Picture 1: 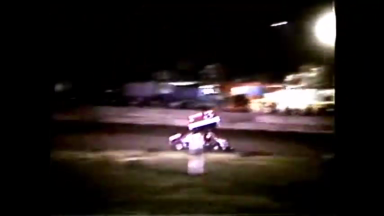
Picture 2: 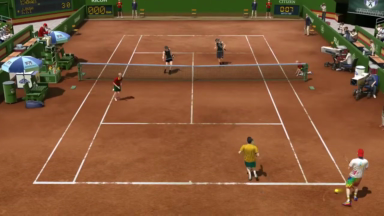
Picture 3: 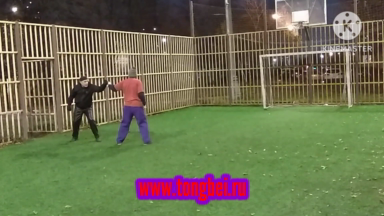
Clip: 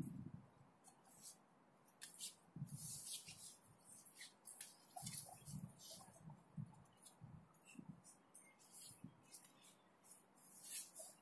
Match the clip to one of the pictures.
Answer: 3